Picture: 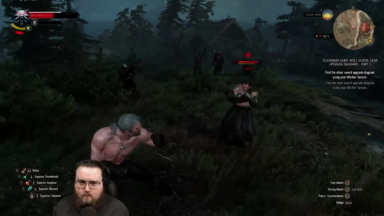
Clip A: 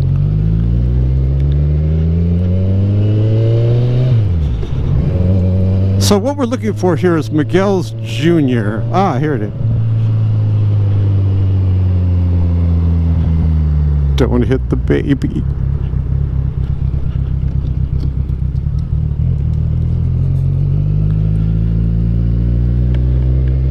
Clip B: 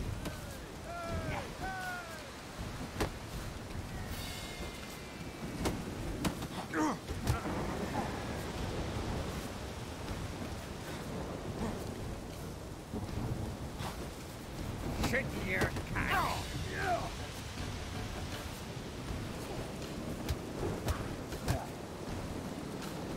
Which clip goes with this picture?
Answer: B